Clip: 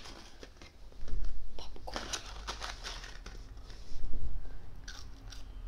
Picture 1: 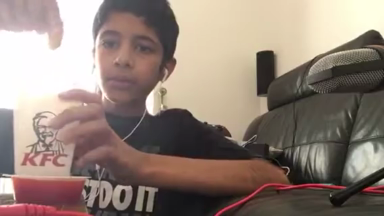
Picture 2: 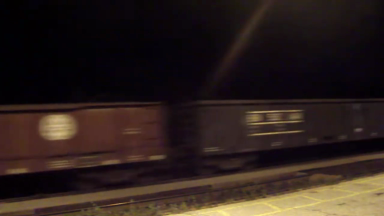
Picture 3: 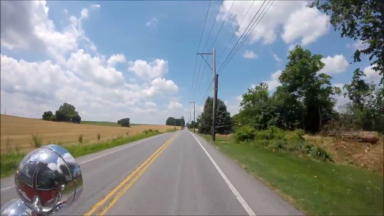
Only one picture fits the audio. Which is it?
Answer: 1